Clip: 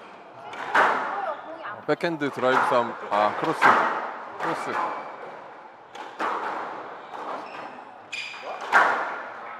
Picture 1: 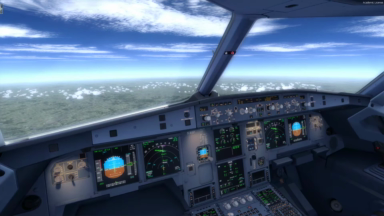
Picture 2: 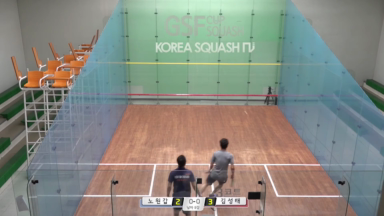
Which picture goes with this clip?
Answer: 2